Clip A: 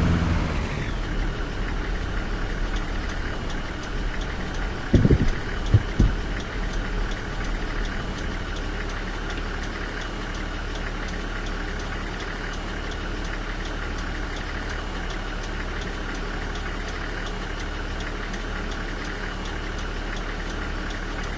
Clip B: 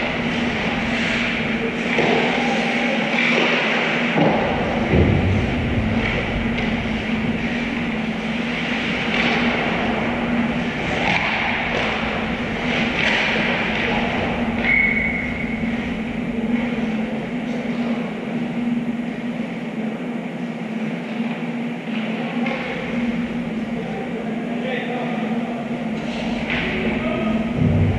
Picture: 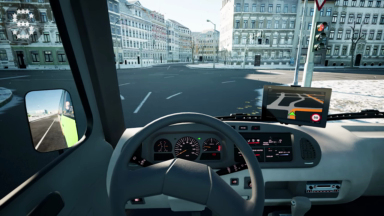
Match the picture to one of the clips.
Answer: A